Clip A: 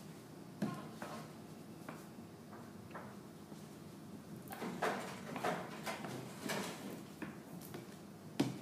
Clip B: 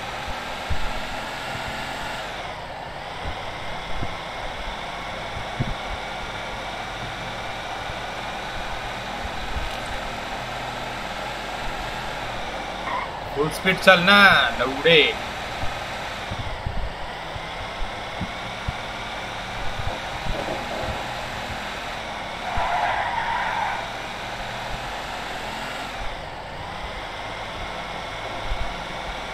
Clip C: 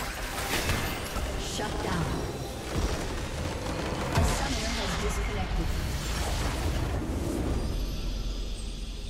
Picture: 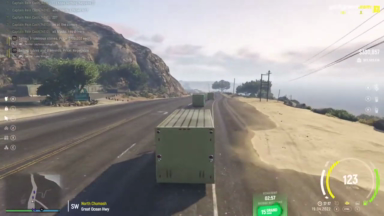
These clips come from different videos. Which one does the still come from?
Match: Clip B